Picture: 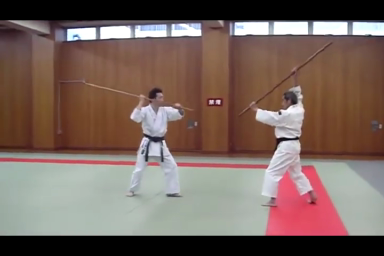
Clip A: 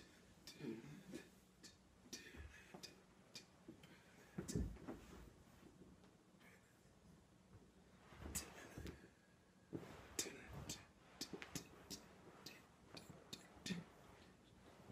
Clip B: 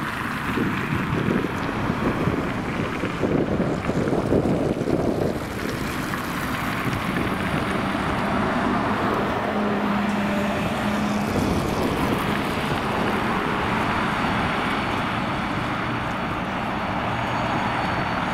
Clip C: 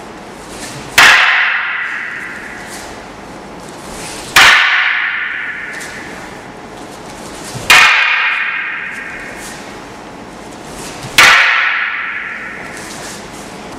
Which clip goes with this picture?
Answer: C